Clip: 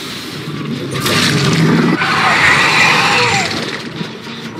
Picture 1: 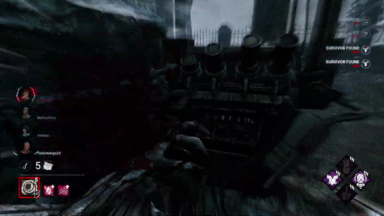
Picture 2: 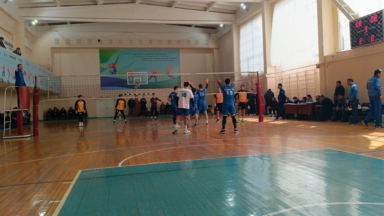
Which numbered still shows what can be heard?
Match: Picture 1